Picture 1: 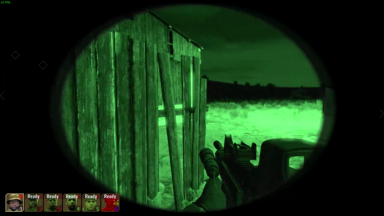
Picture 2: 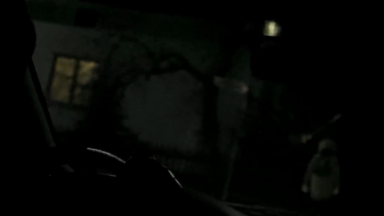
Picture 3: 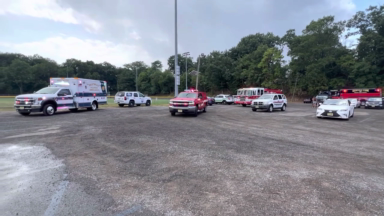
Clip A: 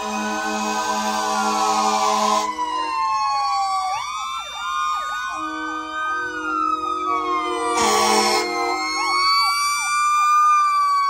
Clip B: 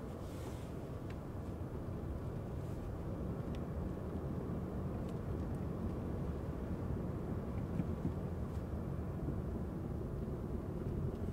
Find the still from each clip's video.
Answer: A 3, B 2